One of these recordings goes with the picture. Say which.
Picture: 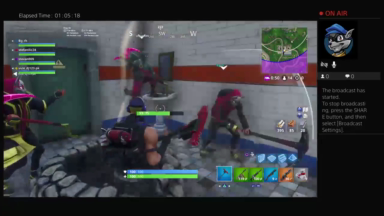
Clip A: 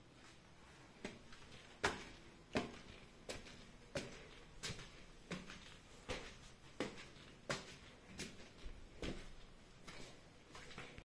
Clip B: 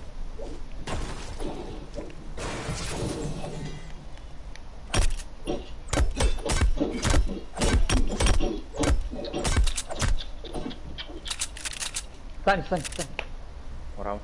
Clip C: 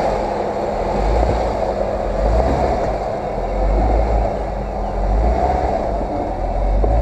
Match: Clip B